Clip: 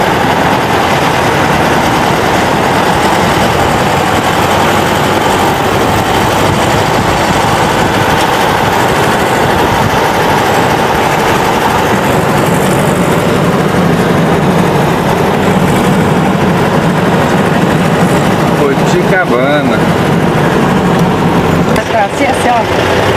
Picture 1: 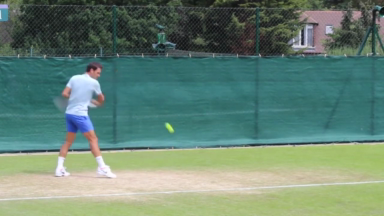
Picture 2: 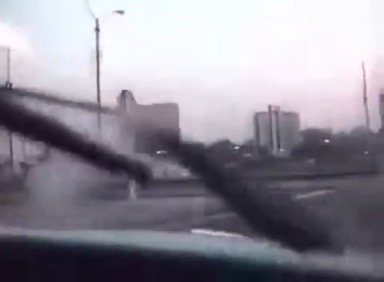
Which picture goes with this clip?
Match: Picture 2